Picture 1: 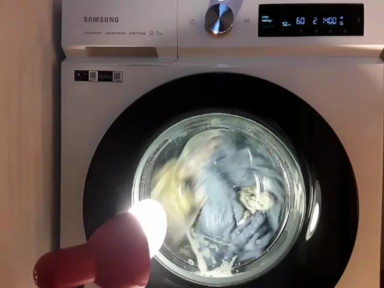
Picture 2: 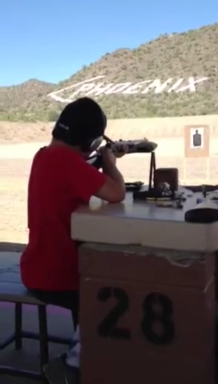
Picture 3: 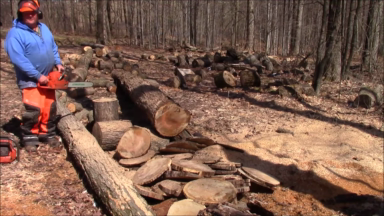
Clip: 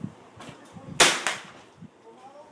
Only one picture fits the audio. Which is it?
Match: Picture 2